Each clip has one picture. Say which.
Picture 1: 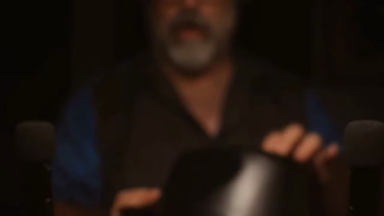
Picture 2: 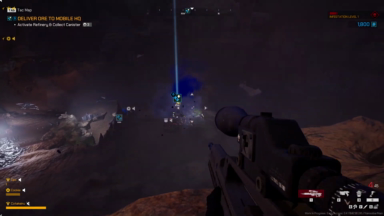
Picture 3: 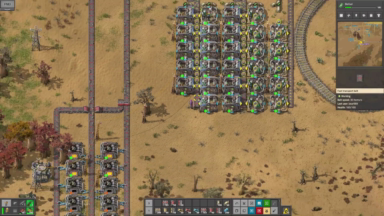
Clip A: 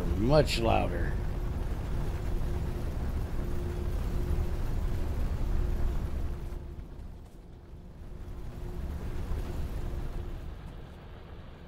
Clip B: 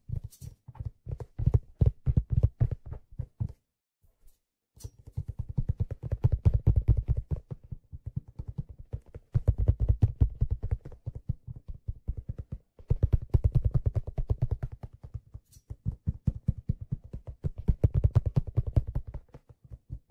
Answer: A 3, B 1